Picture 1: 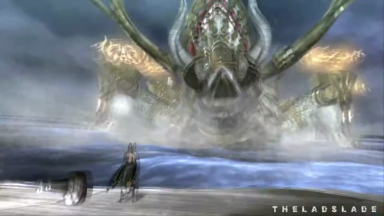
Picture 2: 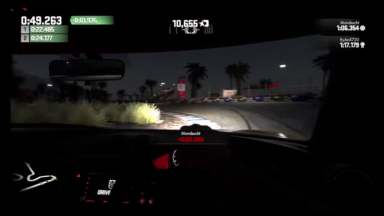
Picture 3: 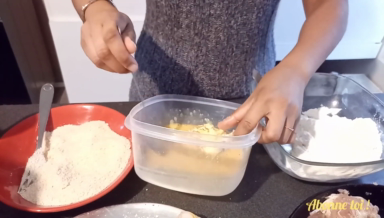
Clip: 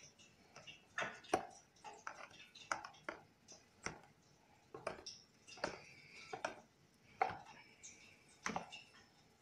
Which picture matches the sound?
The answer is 3